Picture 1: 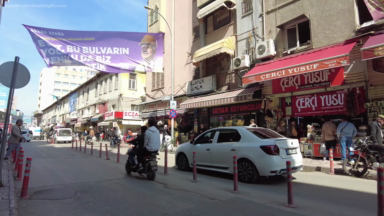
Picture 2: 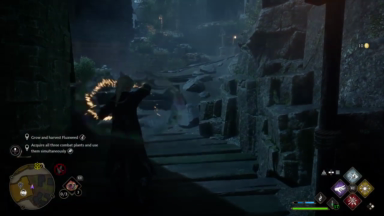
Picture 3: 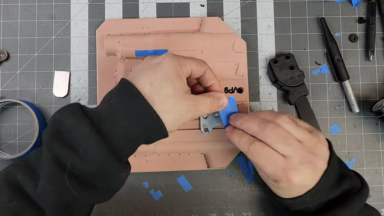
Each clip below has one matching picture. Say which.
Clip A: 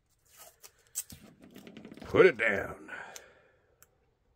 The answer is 3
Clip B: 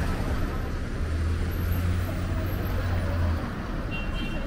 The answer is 1